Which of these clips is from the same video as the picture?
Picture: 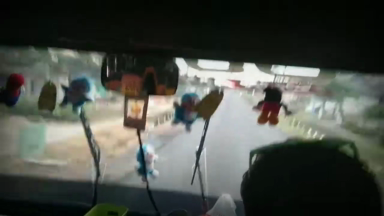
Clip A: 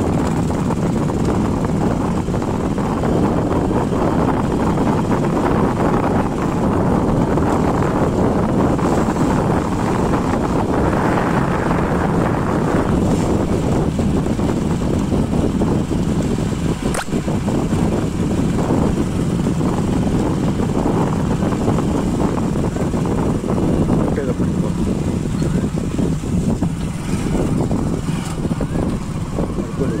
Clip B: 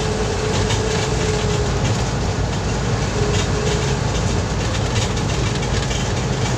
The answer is B